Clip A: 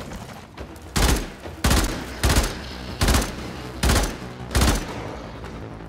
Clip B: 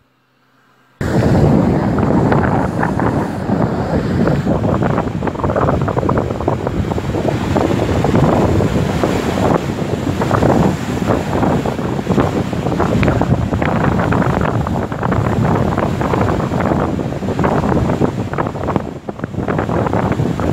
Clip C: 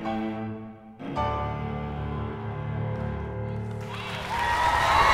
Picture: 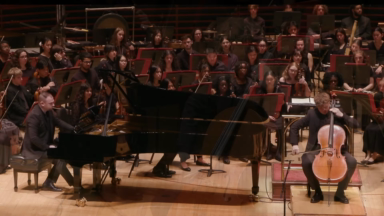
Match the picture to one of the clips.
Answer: C